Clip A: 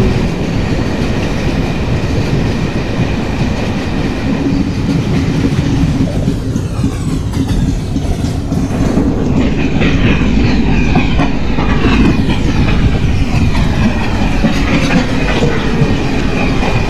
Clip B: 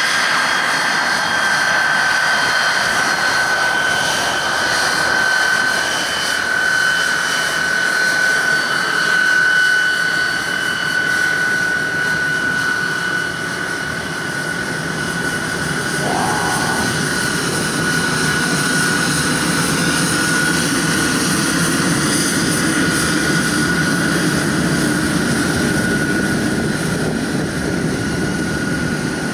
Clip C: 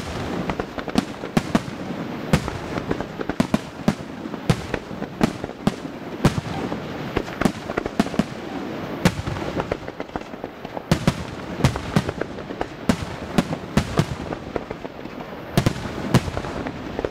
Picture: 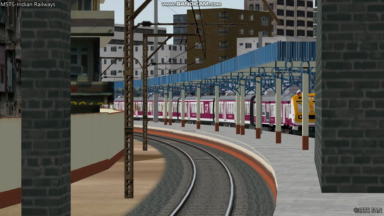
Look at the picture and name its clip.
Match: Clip A